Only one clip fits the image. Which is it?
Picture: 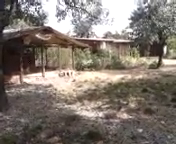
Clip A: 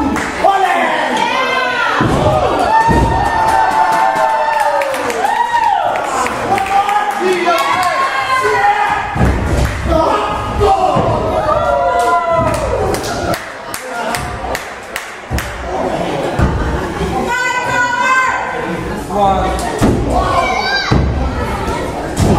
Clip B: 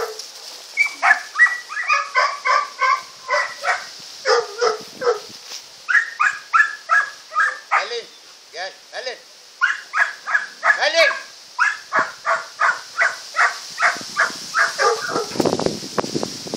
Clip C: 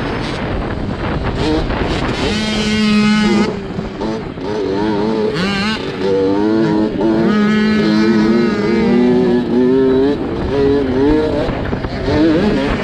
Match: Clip B